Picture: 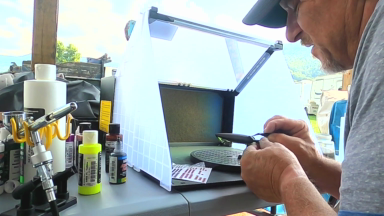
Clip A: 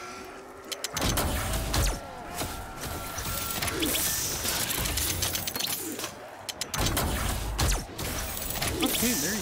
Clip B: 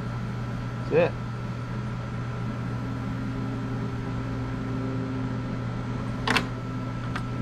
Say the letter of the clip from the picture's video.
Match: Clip B